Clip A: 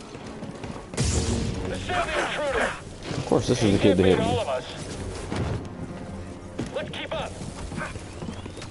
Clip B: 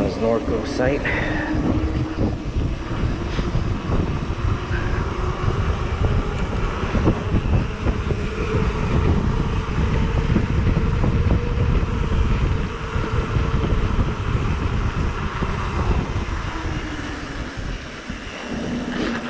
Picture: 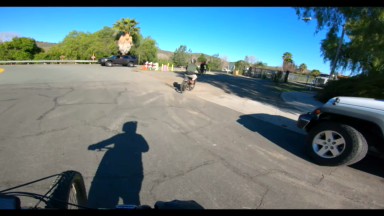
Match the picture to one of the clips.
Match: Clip B